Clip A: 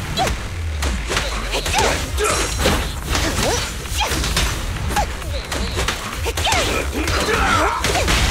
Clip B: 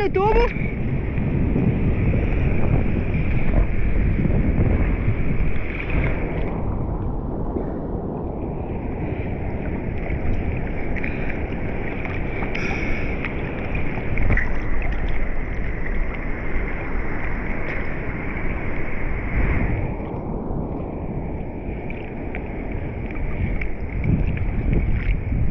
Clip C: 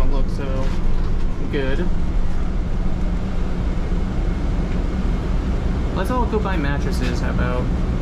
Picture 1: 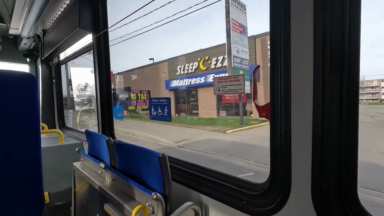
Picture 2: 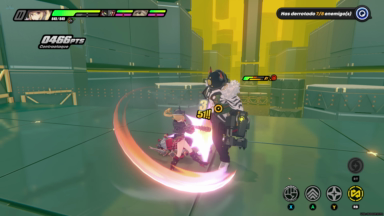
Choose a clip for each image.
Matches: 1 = C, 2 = A